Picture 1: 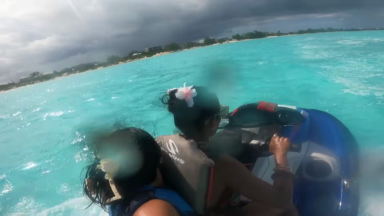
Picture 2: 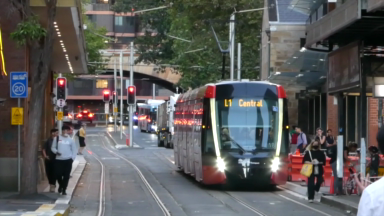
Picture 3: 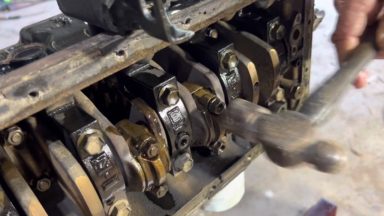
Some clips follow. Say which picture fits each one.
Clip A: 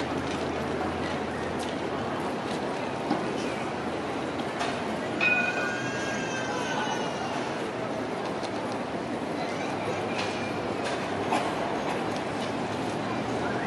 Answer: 2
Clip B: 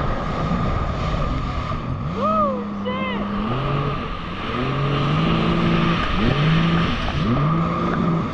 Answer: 1